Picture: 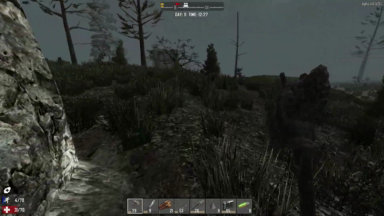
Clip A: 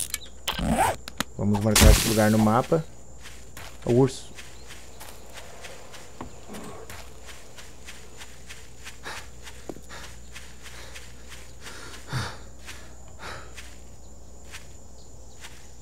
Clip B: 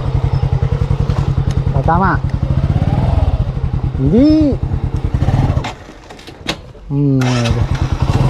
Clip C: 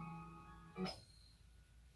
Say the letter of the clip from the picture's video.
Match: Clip A